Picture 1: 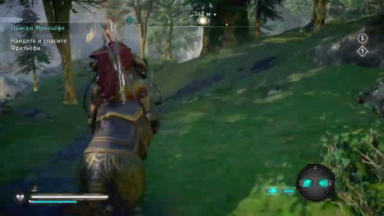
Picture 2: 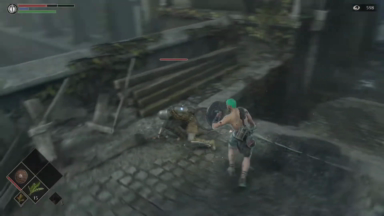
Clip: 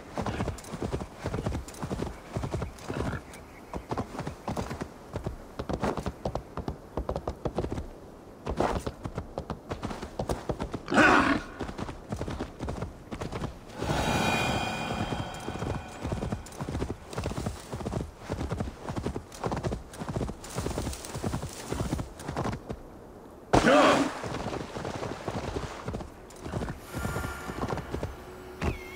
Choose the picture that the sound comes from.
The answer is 1